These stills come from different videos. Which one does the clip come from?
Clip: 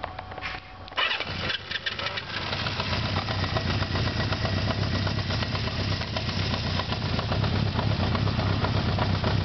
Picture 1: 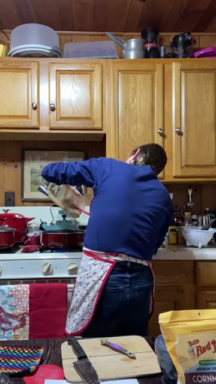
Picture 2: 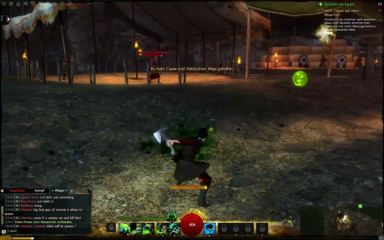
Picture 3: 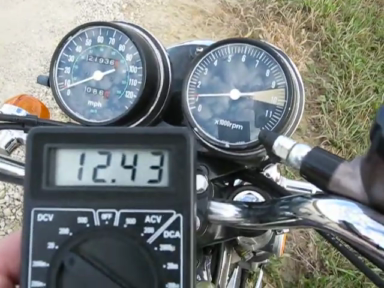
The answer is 3